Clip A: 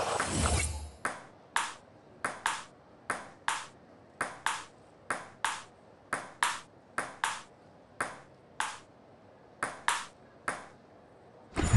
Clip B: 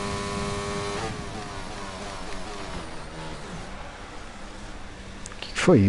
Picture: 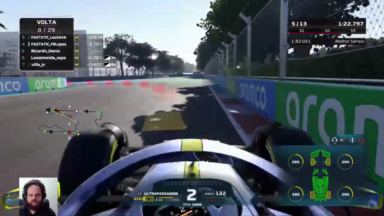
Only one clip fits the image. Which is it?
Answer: B